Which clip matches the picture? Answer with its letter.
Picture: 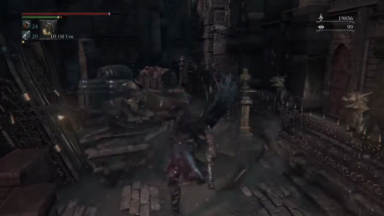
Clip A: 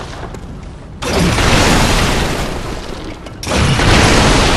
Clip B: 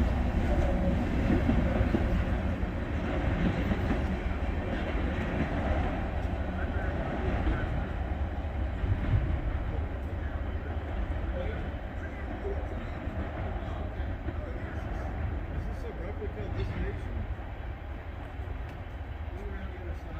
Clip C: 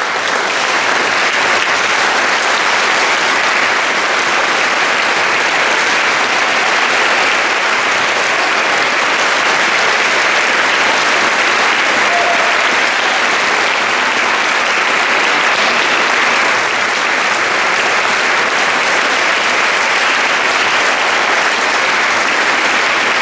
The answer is A